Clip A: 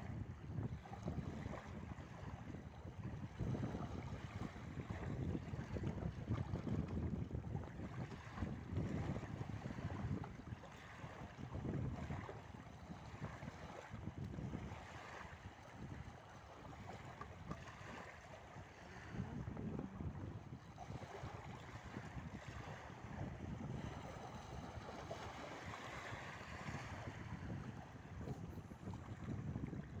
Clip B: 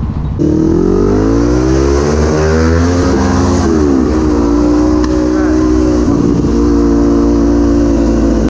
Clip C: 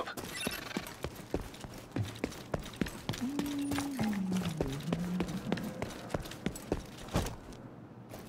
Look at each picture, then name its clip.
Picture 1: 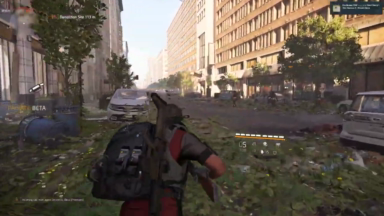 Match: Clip C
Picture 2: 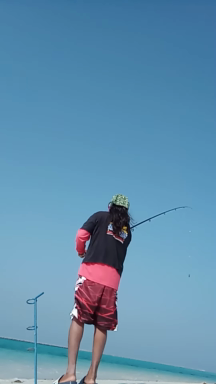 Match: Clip A